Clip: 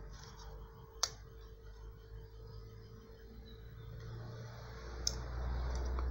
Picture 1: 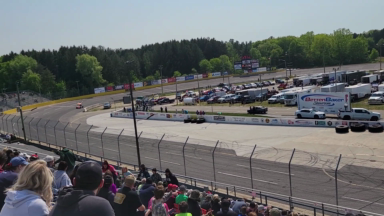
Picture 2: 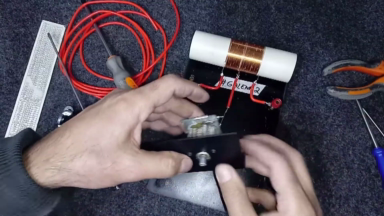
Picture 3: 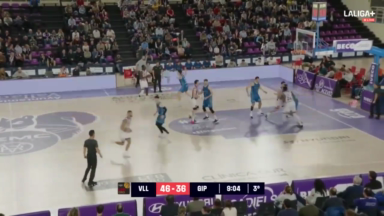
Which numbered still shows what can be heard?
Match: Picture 2